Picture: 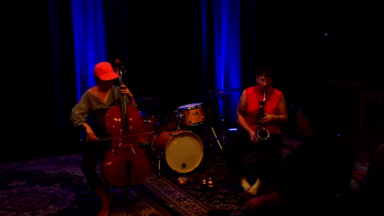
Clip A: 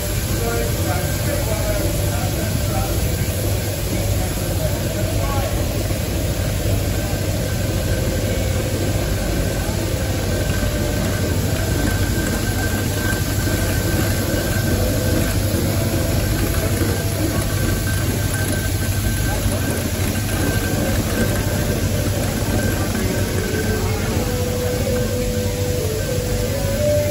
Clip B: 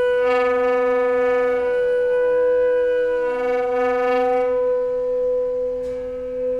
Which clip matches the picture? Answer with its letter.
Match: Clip B